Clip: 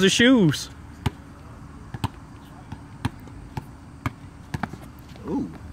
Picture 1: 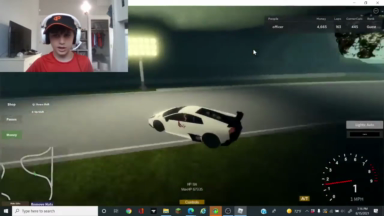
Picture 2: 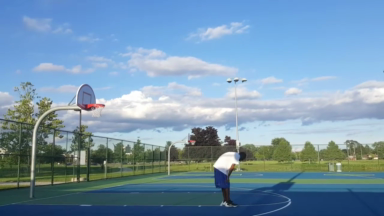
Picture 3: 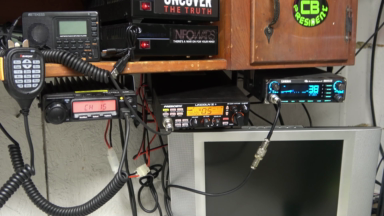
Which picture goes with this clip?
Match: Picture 2